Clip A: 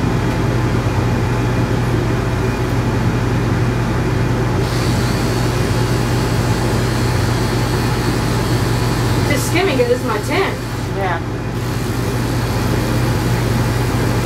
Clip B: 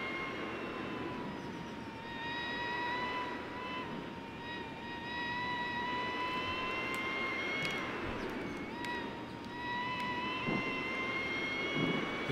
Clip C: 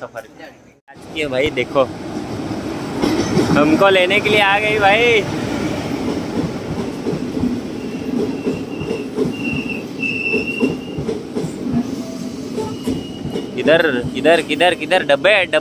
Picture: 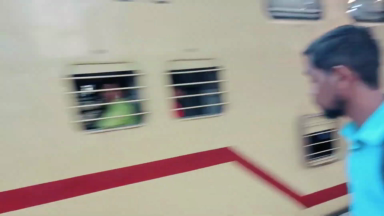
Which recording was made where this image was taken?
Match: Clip C